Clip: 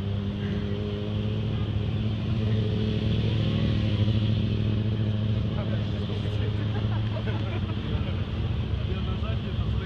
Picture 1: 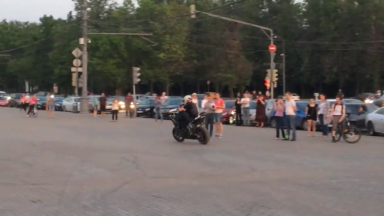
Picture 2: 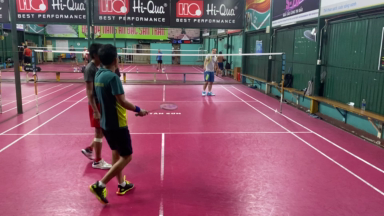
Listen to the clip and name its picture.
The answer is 1